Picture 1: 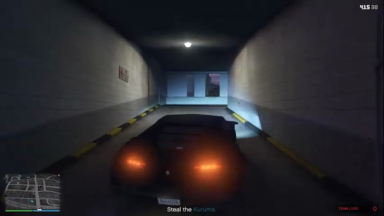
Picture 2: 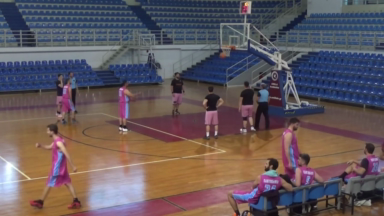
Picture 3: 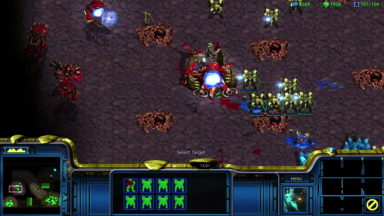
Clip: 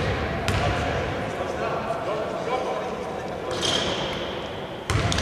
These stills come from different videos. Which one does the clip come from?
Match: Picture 2